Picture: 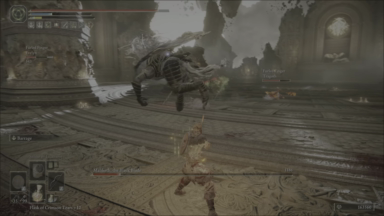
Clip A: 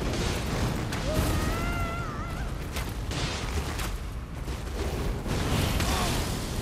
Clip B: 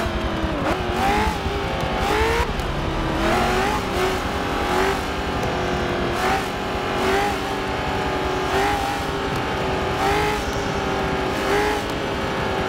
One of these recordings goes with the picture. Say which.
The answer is A